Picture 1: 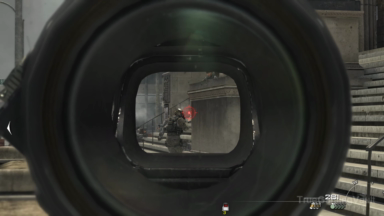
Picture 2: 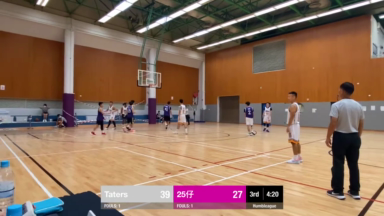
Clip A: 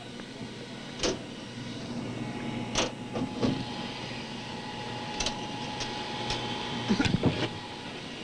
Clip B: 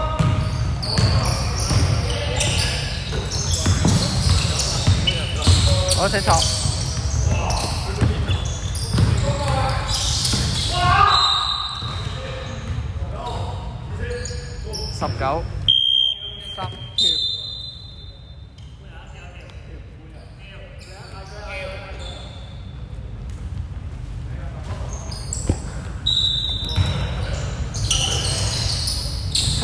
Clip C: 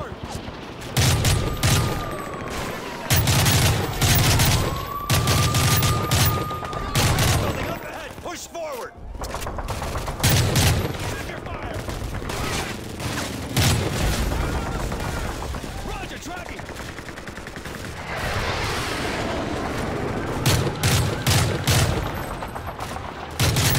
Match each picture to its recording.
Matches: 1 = C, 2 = B